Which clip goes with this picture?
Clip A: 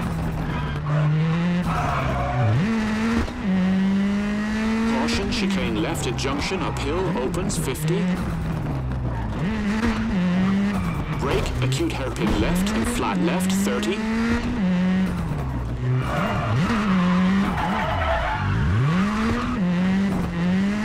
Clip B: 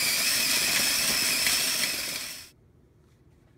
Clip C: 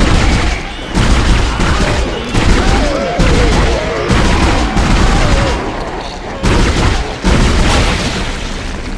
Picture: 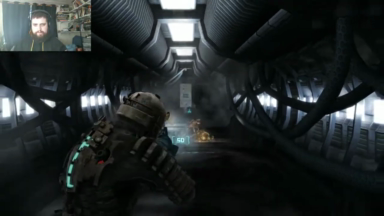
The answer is C